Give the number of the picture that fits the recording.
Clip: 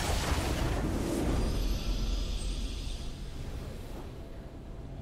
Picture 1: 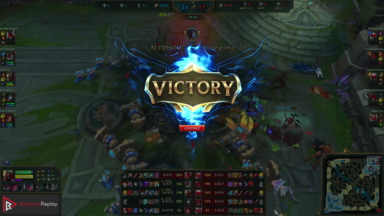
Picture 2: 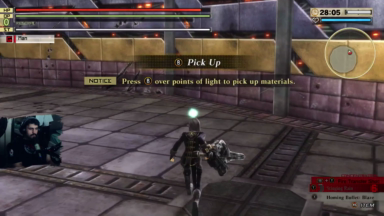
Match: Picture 1